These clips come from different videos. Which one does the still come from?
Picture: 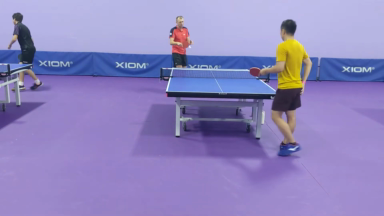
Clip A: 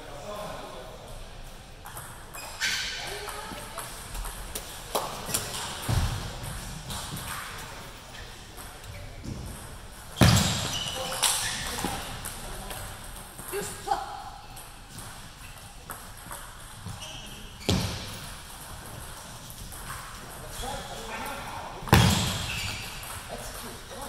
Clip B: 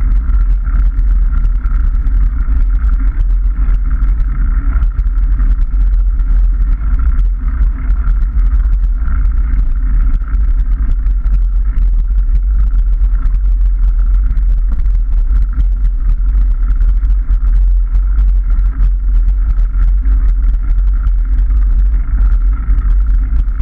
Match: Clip A